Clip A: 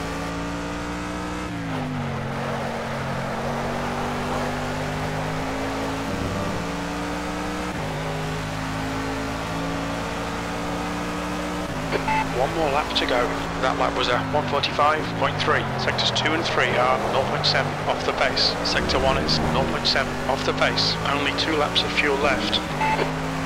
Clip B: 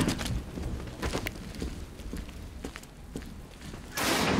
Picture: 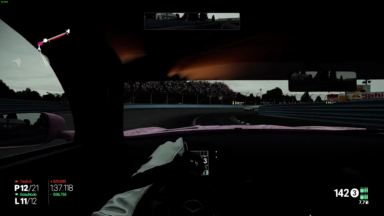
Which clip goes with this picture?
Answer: A